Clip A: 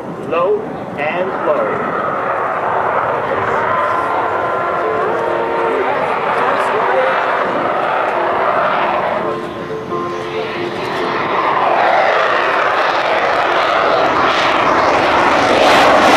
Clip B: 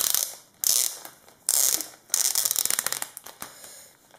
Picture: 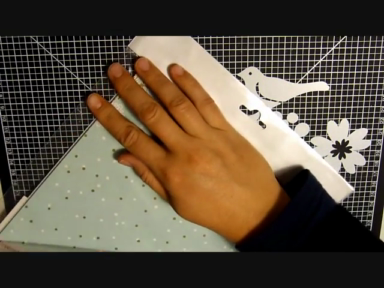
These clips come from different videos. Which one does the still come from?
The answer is B